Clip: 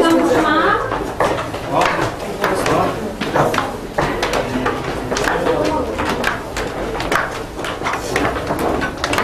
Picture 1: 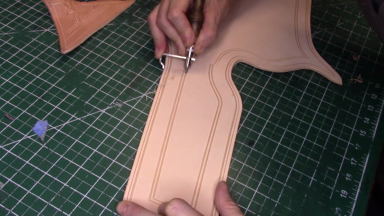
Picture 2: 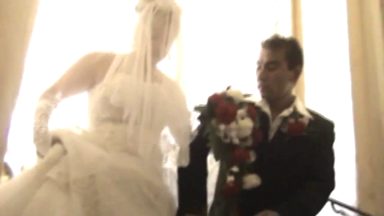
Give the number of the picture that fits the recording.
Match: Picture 2